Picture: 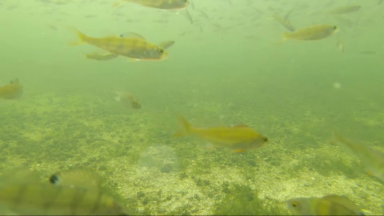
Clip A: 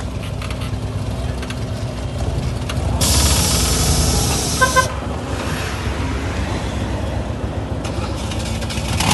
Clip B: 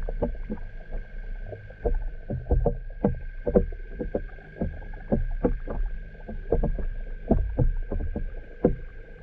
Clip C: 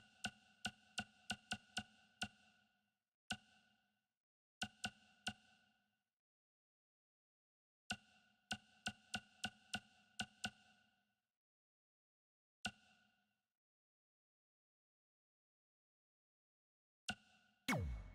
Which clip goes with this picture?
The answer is B